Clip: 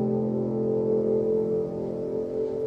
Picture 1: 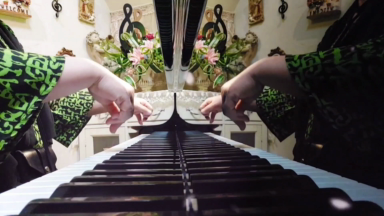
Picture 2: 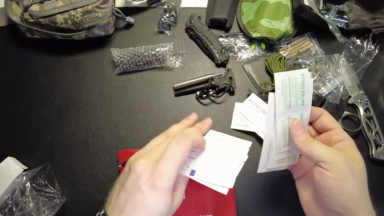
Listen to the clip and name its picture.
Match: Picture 1